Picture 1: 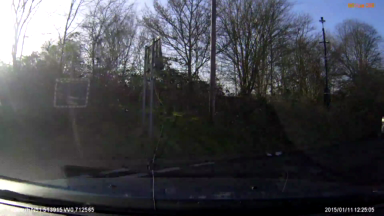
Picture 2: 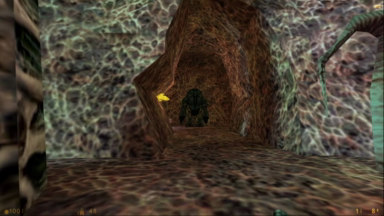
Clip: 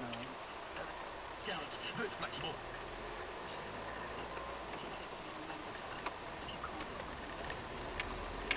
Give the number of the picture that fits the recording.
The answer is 1